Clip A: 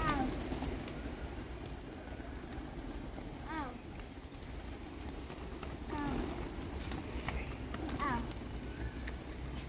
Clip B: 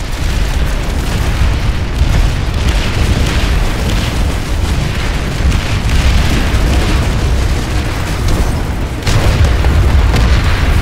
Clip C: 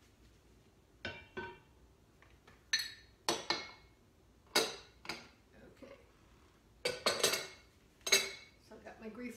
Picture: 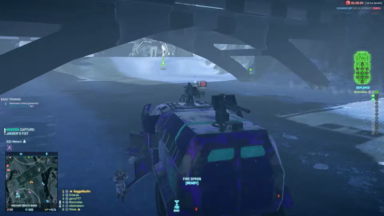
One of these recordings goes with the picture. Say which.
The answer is B